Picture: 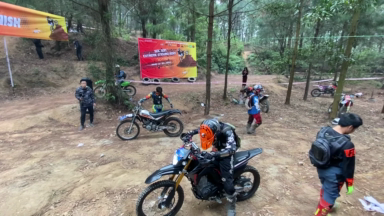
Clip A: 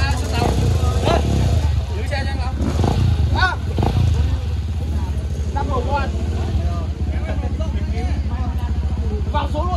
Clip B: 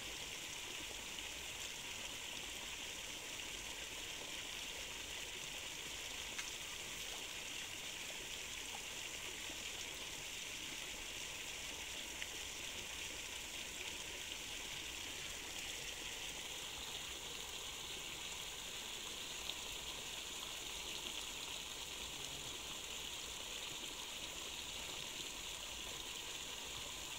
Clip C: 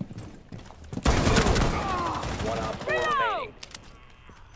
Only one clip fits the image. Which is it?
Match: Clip A